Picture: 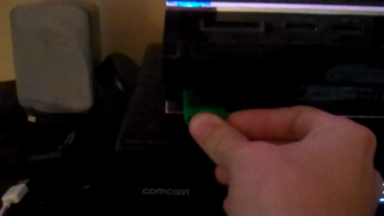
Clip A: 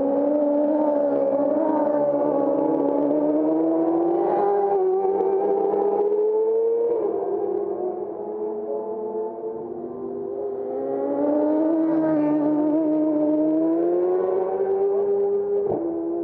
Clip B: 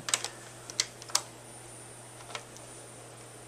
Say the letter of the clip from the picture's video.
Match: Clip B